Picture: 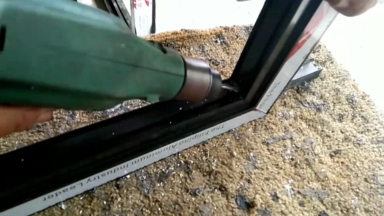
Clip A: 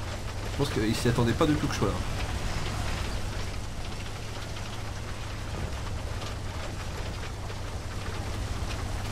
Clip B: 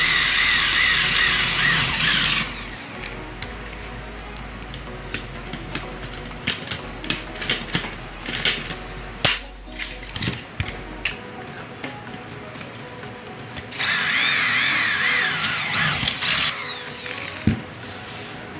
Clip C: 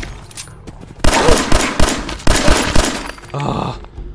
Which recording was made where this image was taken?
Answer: B